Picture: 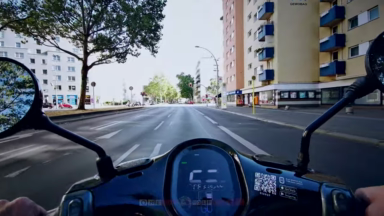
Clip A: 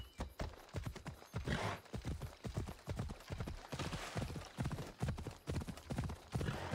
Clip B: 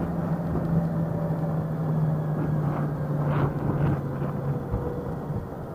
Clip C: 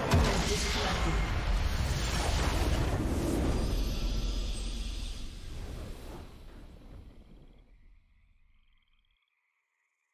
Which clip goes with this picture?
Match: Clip B